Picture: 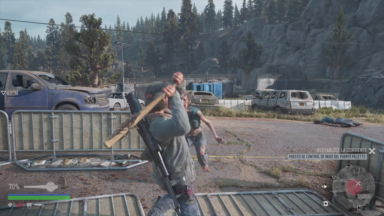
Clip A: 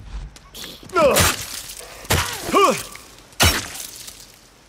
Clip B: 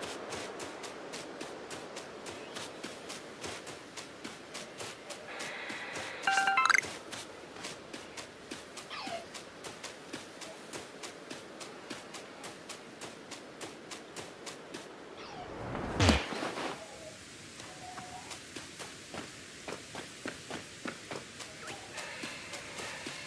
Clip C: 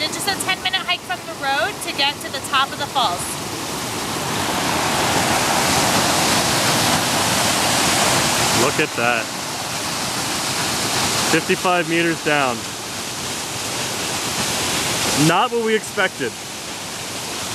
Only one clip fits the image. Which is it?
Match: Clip A